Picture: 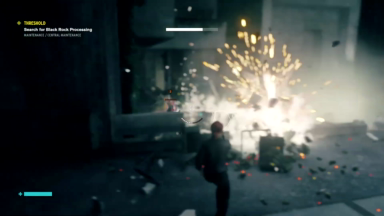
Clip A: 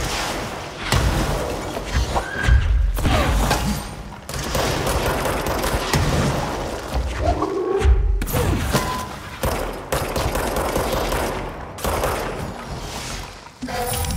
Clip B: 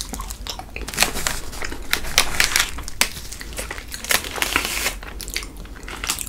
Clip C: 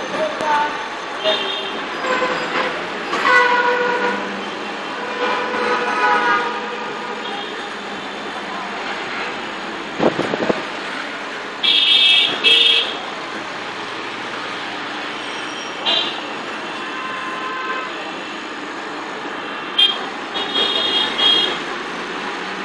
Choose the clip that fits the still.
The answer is A